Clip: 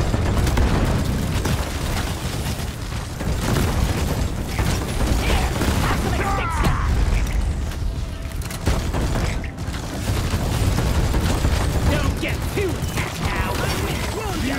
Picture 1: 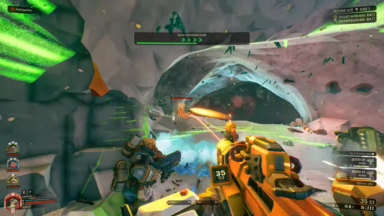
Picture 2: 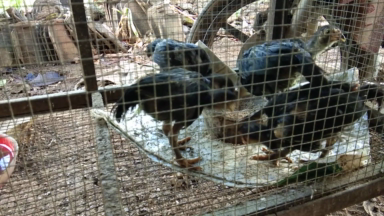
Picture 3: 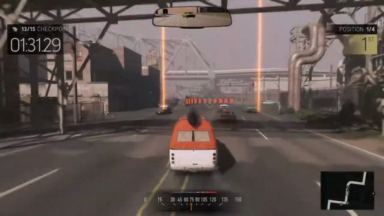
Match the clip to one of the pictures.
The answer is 1